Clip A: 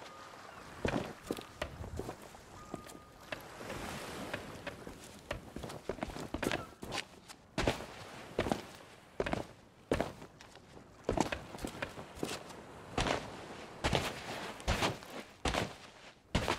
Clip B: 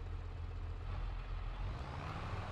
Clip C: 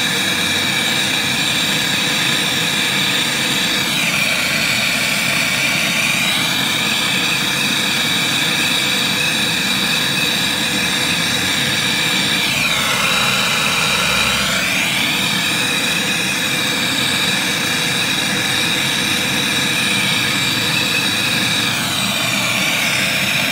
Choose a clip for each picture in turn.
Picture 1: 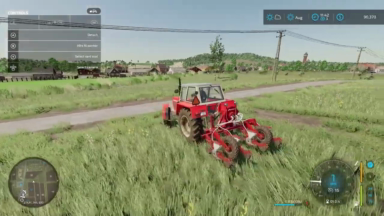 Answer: B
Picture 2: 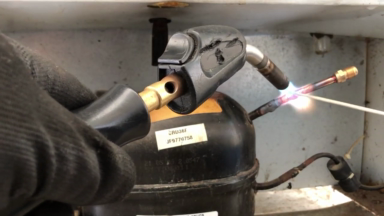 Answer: C